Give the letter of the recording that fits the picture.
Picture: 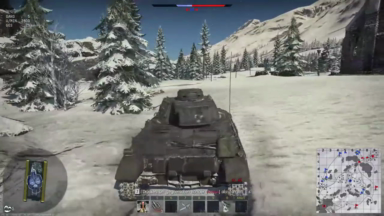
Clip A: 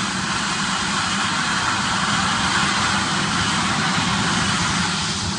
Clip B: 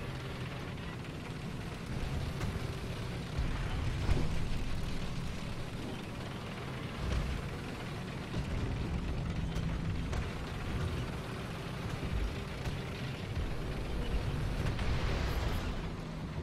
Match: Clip B